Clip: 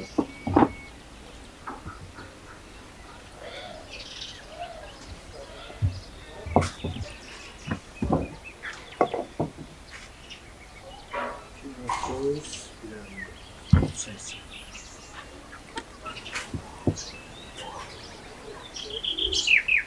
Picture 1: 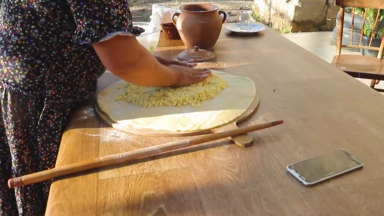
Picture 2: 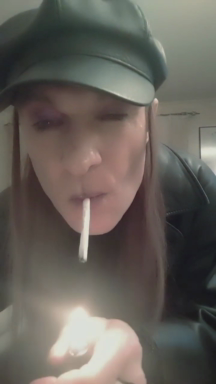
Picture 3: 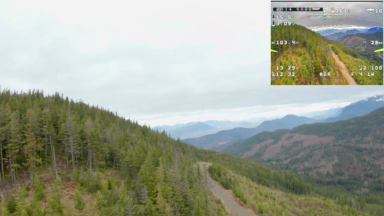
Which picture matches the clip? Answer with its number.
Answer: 1